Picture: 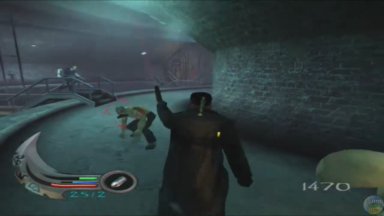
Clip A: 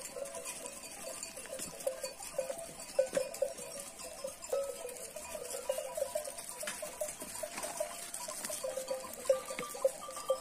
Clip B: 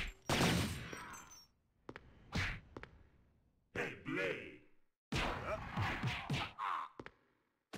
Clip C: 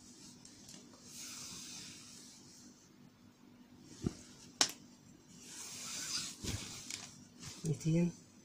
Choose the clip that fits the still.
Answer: B